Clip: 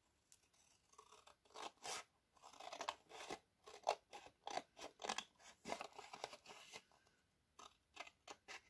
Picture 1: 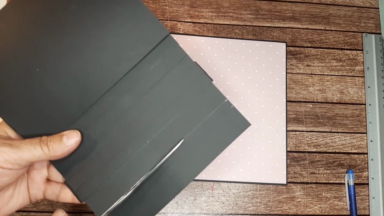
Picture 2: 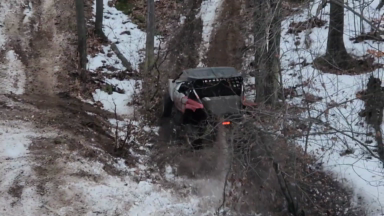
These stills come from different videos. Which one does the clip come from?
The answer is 1